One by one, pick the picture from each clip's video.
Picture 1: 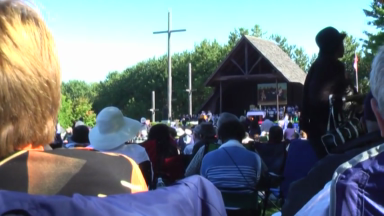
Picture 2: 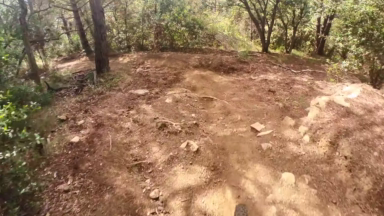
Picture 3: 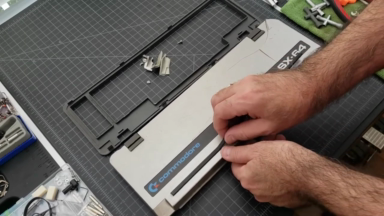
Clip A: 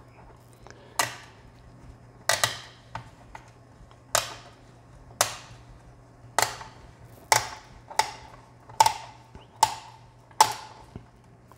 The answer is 3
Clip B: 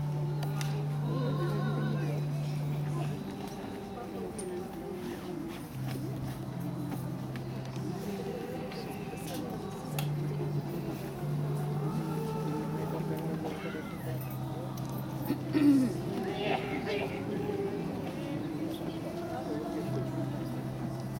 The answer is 1